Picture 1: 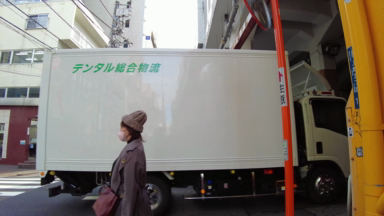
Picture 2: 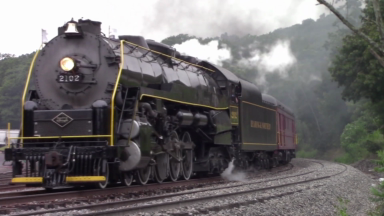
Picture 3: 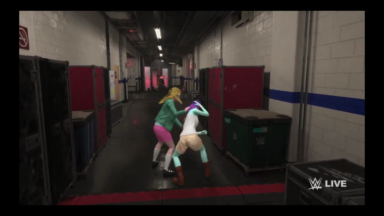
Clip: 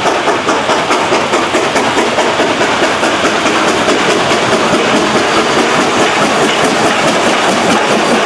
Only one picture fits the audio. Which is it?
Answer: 2